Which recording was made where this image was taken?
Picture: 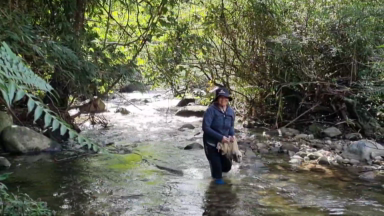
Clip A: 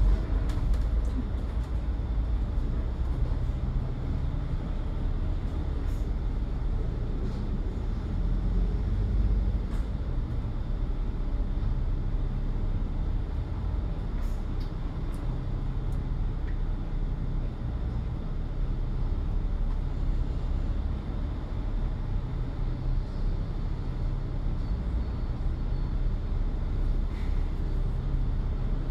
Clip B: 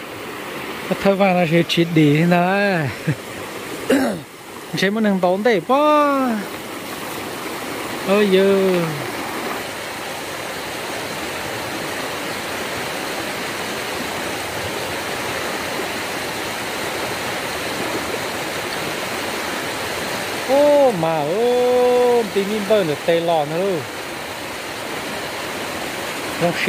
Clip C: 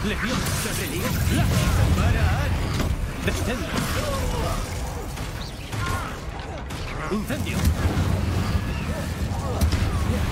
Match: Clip B